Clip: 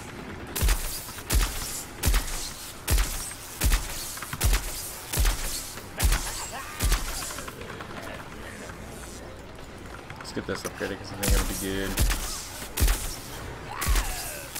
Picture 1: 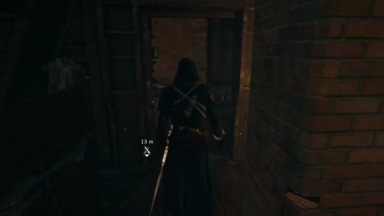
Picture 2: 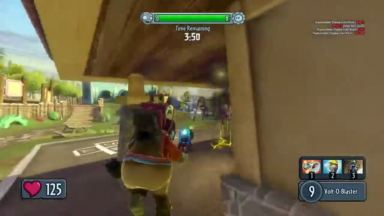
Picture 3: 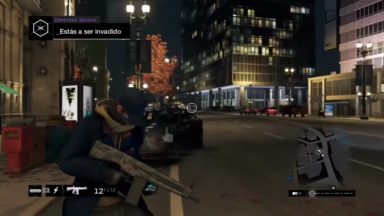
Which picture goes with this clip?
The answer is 2